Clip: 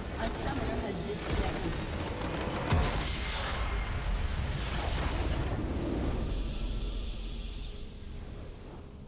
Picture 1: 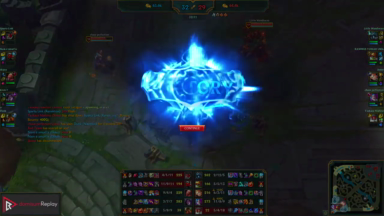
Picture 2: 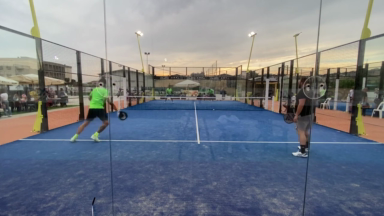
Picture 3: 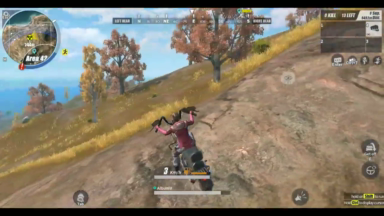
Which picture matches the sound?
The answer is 1